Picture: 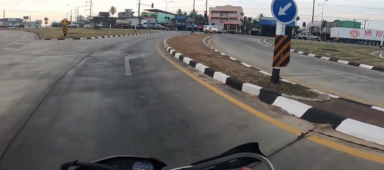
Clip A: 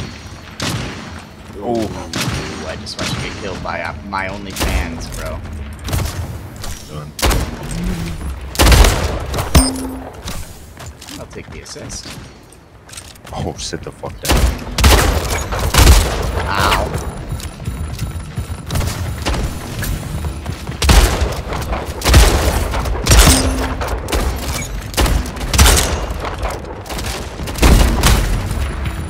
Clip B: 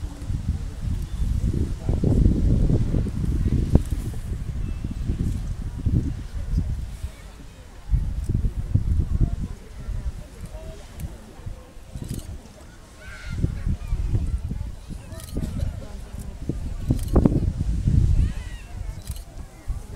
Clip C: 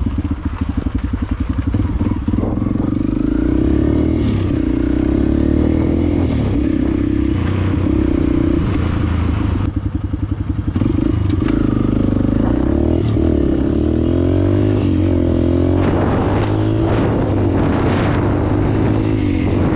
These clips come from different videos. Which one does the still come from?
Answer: C